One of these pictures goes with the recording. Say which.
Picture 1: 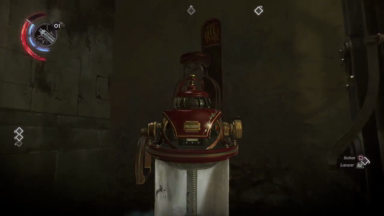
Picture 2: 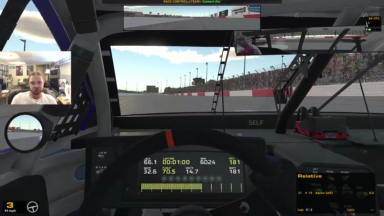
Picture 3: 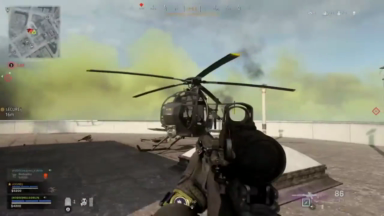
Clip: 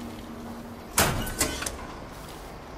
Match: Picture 1